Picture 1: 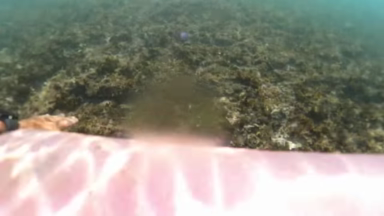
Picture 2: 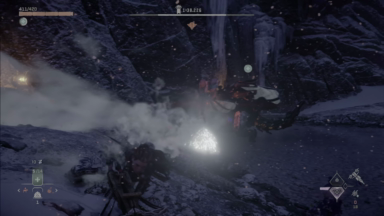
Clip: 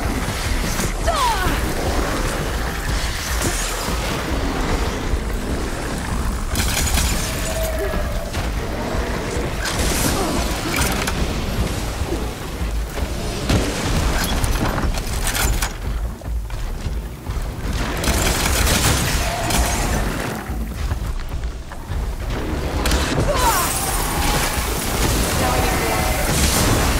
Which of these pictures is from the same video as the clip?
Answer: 2